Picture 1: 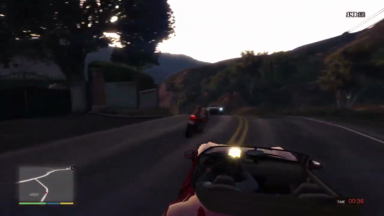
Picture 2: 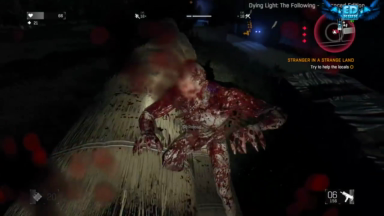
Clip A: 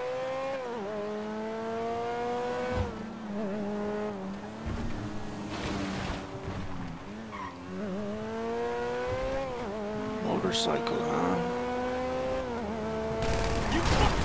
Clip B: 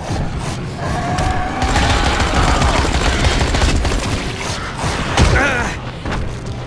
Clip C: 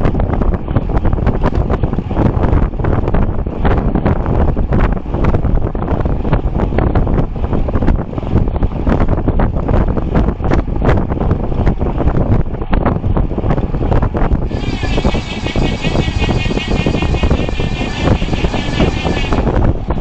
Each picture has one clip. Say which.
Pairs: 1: A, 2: B